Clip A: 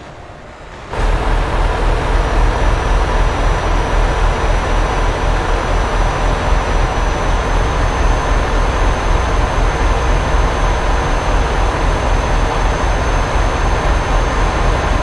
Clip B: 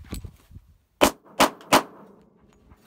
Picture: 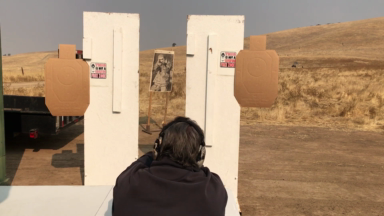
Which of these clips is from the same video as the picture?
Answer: B